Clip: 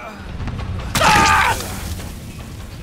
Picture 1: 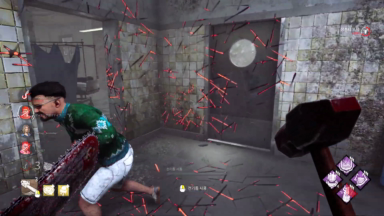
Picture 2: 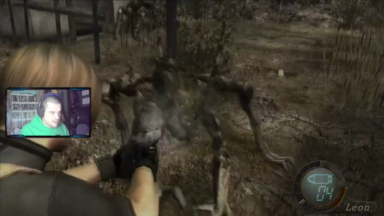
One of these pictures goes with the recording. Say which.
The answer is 1